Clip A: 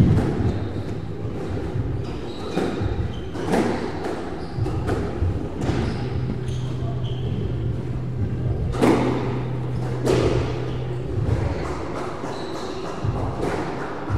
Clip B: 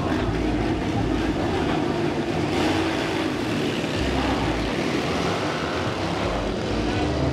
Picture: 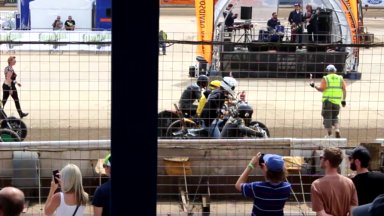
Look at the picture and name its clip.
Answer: B